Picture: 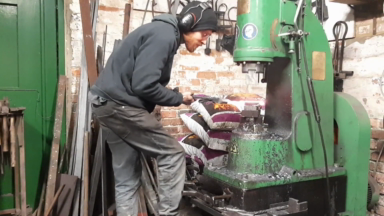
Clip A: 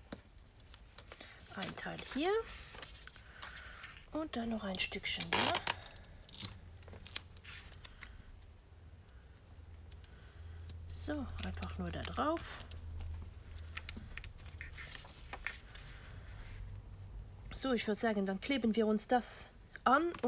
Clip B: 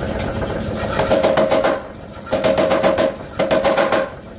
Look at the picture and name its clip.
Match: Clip B